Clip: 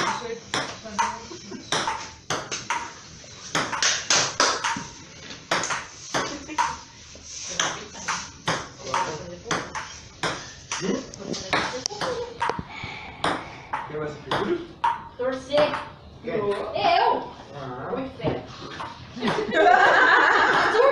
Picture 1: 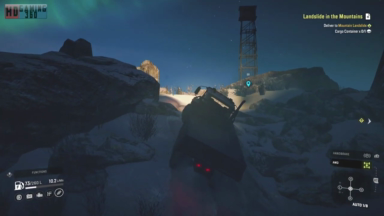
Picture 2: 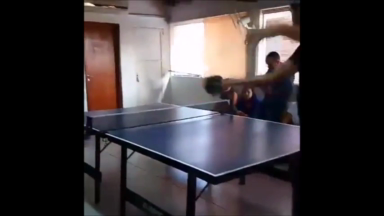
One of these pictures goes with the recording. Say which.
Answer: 2